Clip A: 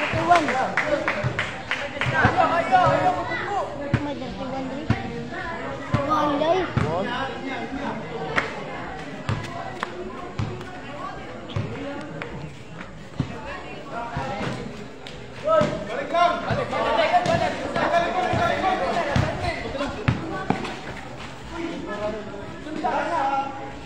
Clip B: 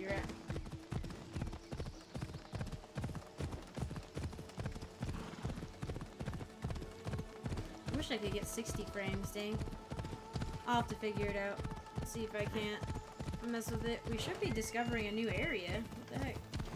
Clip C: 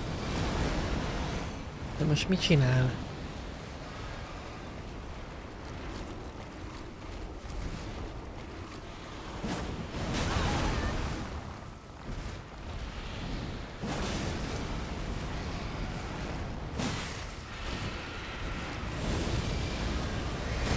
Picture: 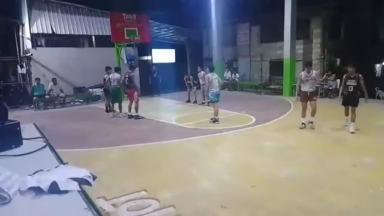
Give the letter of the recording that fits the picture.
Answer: A